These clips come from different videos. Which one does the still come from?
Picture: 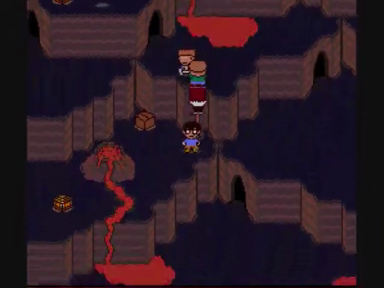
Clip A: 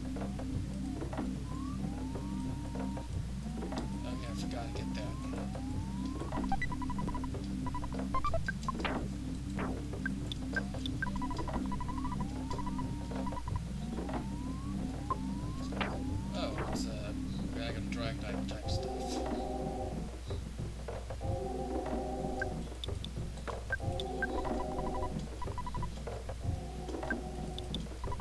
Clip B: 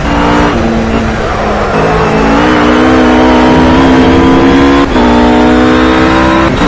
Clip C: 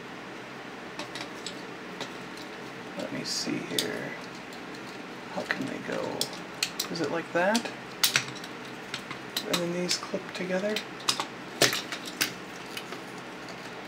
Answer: A